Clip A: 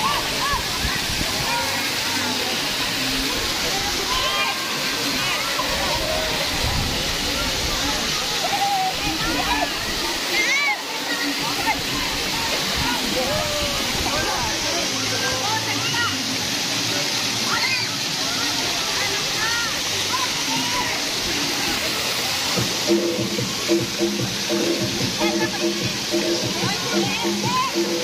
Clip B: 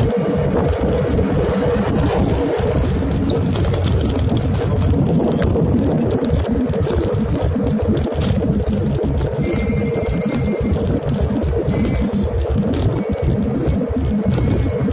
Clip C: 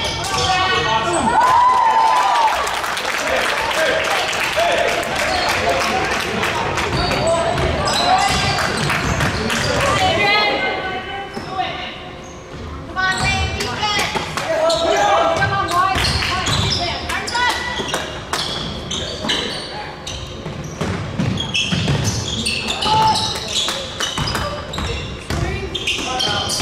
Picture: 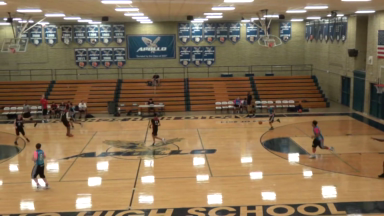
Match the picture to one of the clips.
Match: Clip C